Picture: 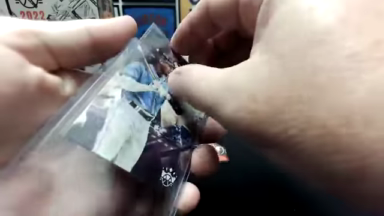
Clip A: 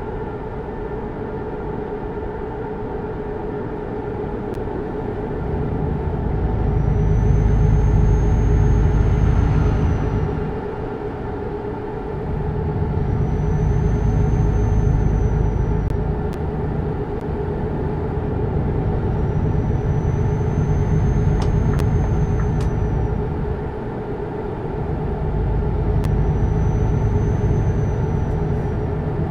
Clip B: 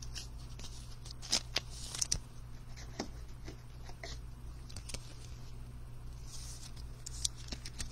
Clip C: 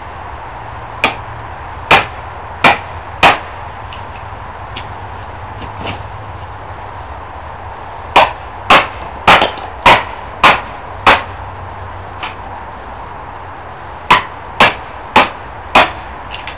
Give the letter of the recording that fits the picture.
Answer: B